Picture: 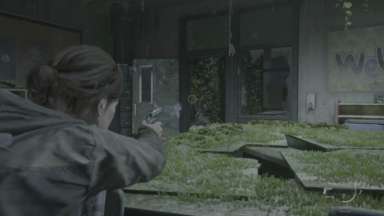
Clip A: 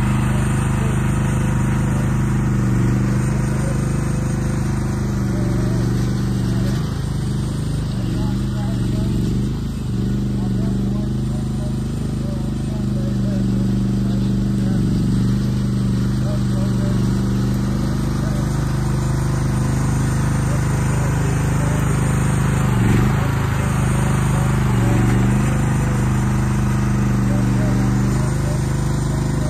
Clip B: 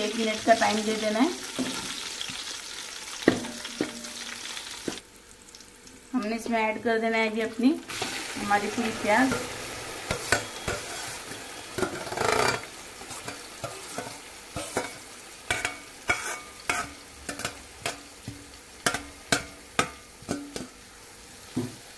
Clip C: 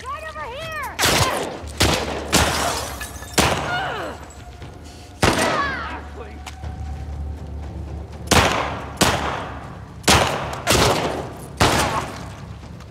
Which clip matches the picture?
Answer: C